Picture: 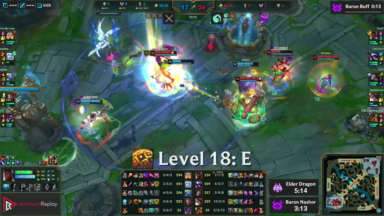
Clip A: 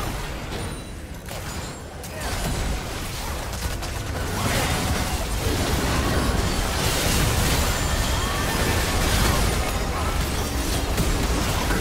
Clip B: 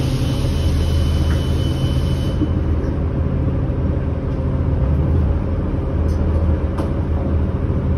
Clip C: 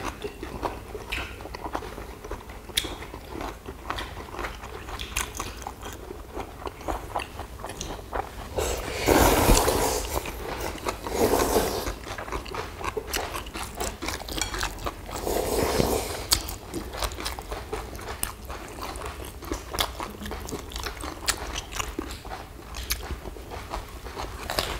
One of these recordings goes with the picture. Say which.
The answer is A